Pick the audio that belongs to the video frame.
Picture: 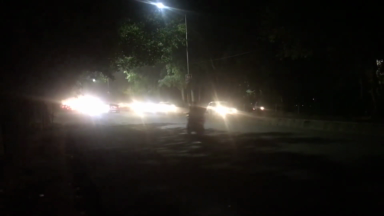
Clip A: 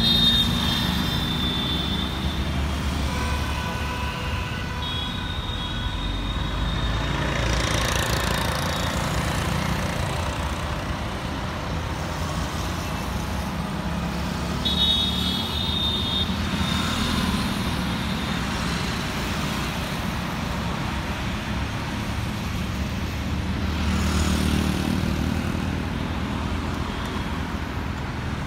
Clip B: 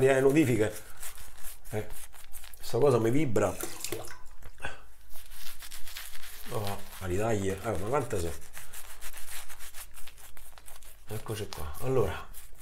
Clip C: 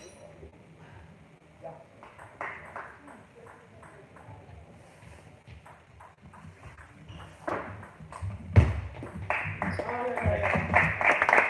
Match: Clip A